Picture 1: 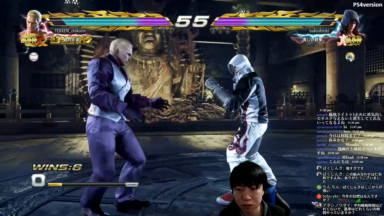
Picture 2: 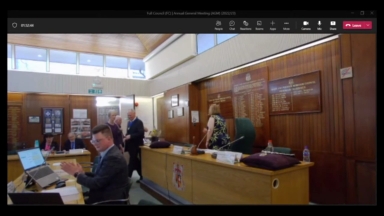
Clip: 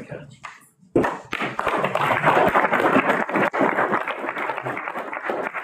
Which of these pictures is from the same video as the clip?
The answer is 2